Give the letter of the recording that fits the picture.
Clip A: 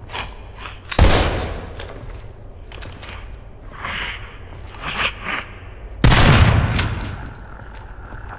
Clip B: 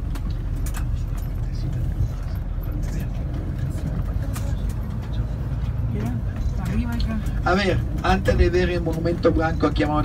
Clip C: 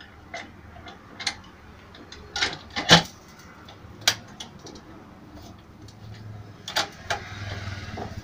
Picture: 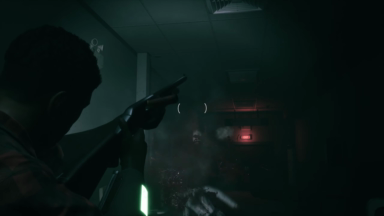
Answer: A